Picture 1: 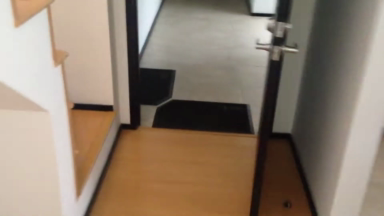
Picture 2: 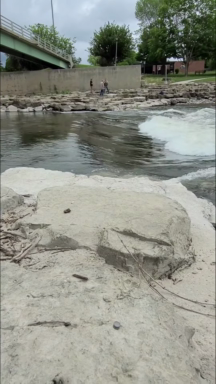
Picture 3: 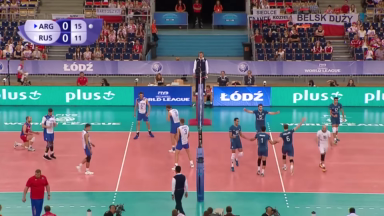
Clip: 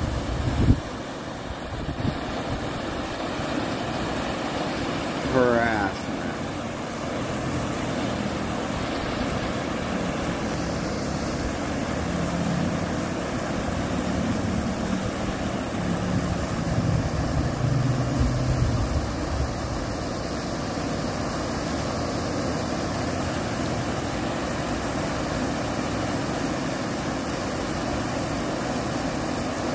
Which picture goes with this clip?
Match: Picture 2